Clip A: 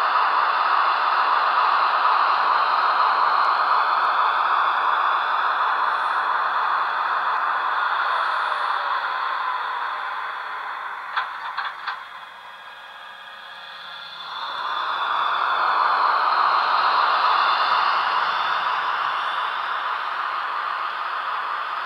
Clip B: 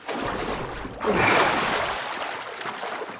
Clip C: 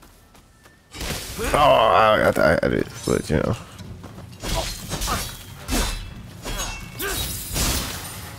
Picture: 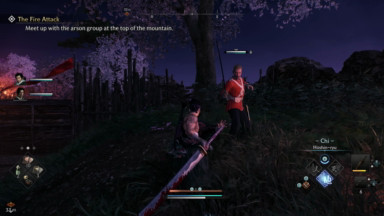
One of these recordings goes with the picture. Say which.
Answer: C